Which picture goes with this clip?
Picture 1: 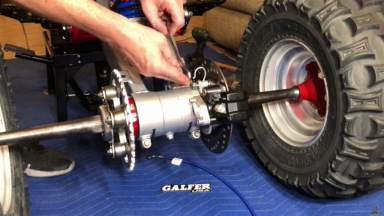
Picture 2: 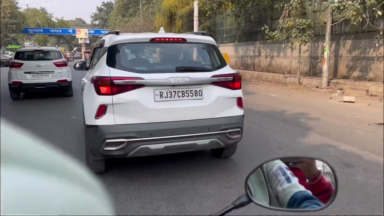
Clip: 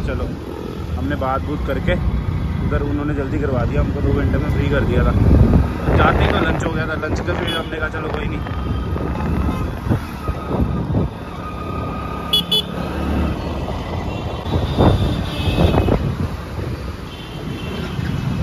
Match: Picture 2